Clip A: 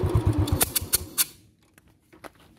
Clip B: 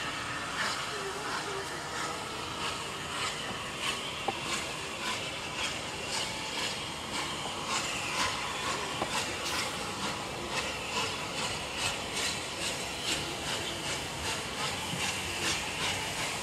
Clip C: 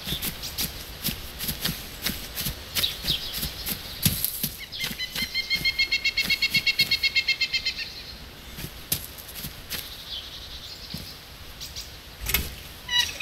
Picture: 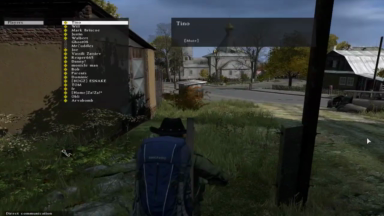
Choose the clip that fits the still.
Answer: C